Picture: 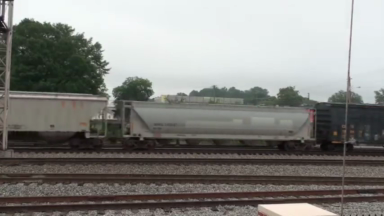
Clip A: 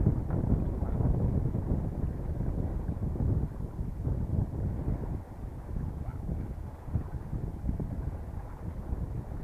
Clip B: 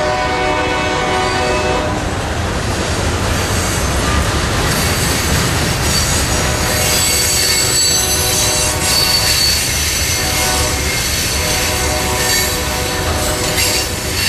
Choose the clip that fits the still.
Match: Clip B